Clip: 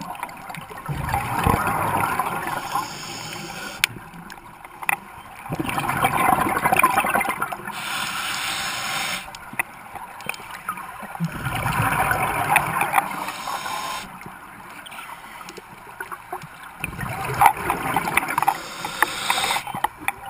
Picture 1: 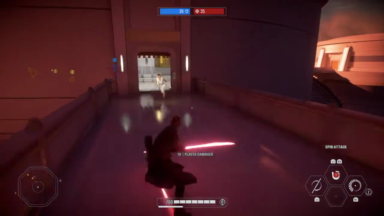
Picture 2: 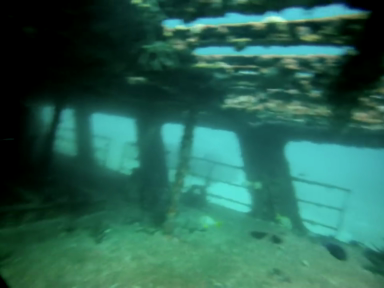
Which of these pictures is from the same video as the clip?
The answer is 2